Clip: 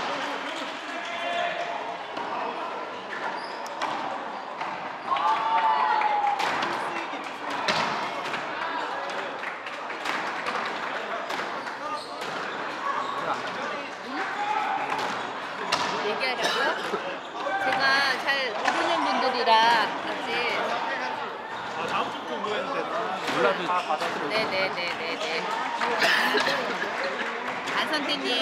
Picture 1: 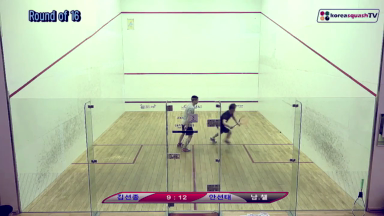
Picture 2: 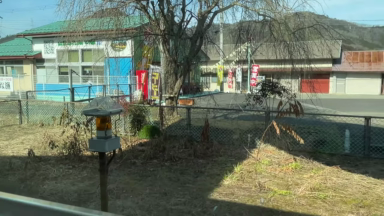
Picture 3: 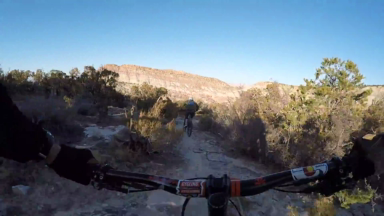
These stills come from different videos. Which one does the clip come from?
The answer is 1